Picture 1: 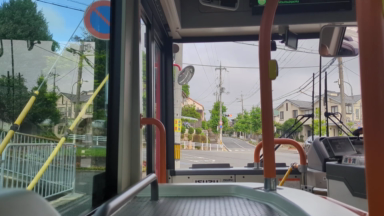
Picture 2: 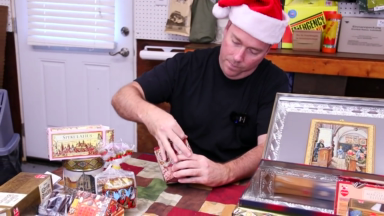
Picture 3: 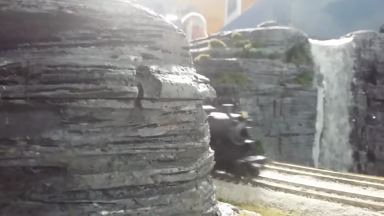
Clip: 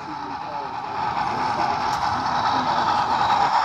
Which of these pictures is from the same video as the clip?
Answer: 3